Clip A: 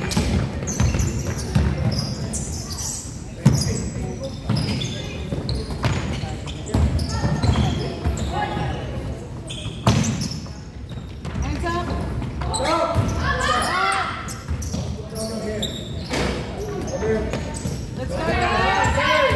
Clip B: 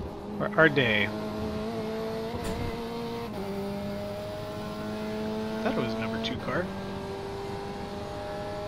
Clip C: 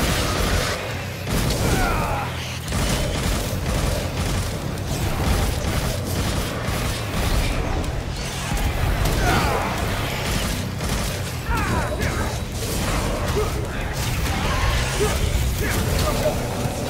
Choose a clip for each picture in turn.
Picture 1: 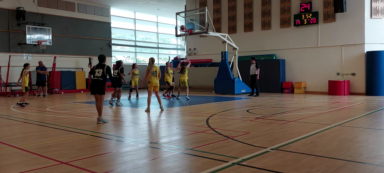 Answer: A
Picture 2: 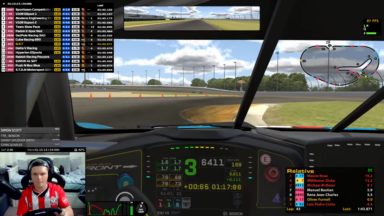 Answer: B